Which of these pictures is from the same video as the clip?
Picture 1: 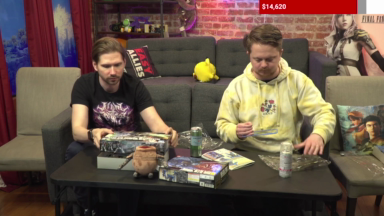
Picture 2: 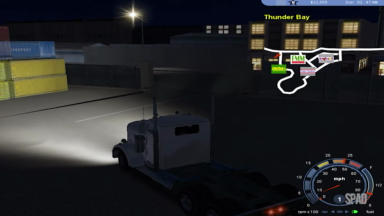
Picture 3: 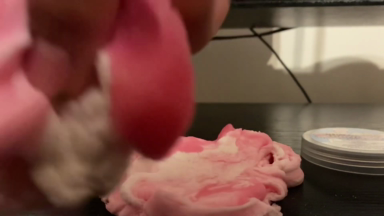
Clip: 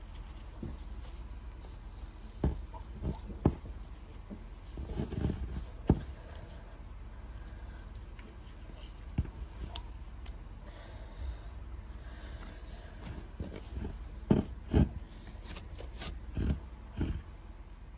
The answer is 3